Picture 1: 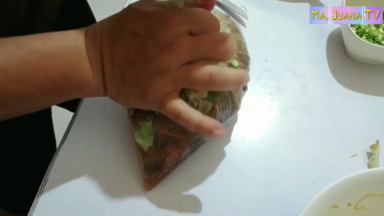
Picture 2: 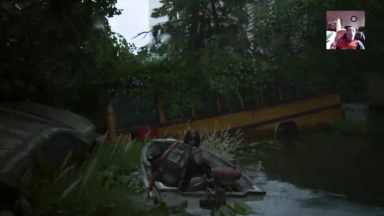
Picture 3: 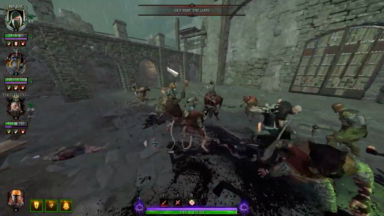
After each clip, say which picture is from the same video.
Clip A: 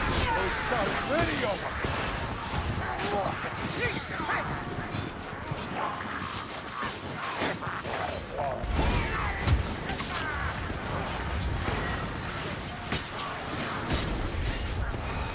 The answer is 3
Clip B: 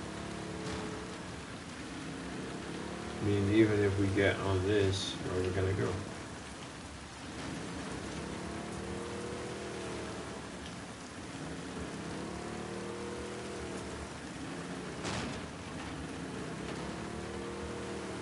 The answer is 2